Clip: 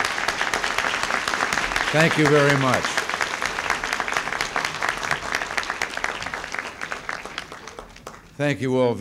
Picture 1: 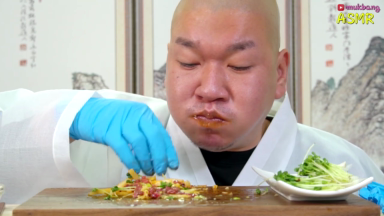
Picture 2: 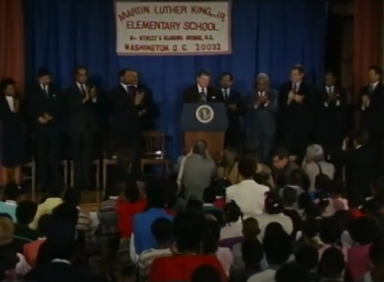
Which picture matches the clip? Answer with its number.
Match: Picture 2